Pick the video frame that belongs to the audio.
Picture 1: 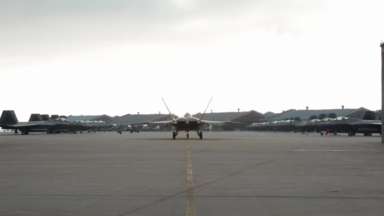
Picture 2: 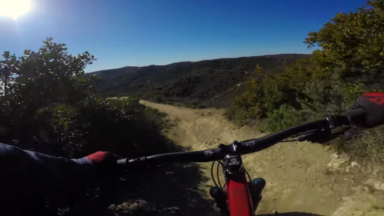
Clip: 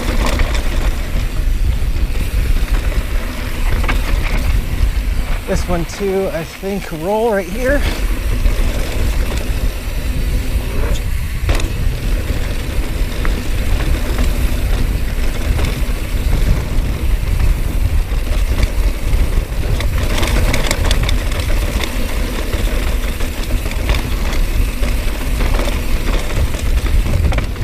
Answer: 2